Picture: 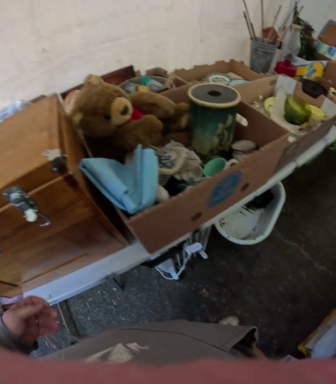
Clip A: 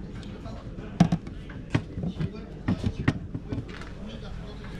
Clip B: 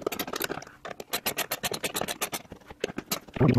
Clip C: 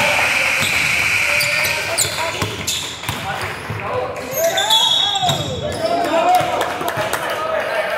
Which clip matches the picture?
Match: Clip A